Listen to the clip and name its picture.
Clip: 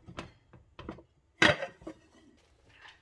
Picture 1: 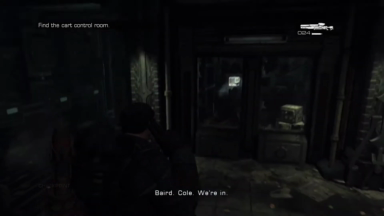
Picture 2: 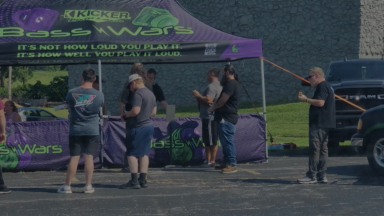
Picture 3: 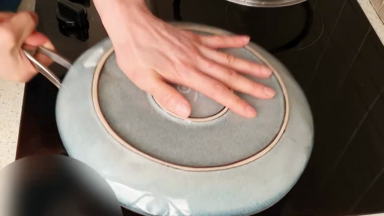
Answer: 3